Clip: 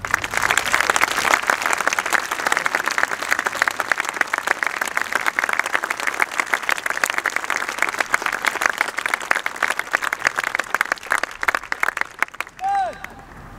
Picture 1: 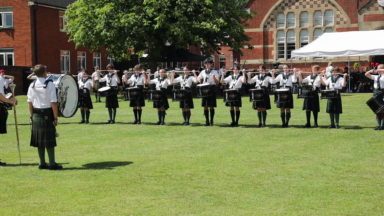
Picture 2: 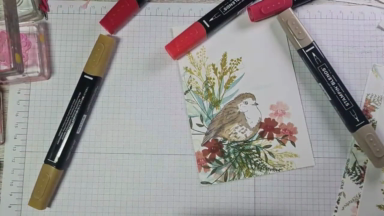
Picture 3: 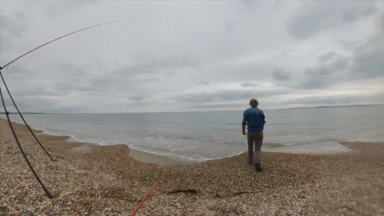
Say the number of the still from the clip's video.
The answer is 1